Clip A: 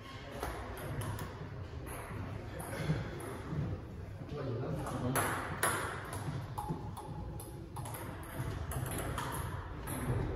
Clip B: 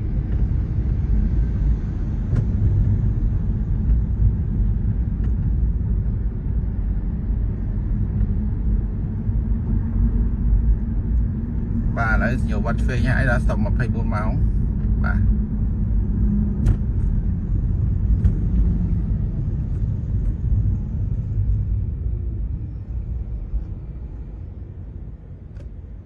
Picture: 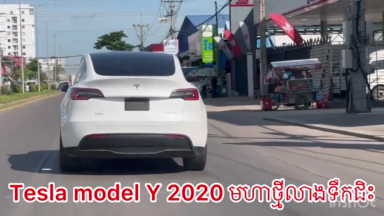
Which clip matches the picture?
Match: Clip B